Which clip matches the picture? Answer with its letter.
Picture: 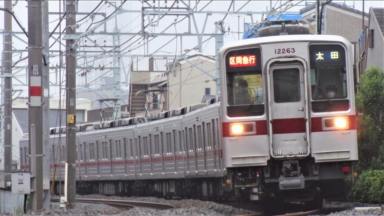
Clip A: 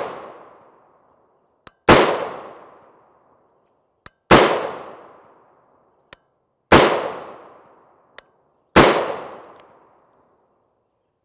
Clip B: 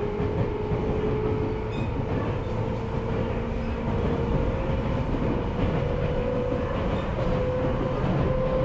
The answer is B